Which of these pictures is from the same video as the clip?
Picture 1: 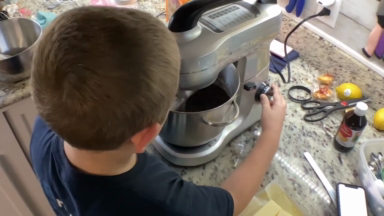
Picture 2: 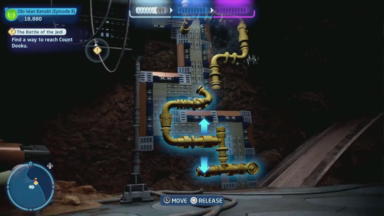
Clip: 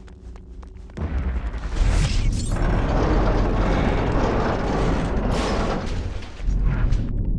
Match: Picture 2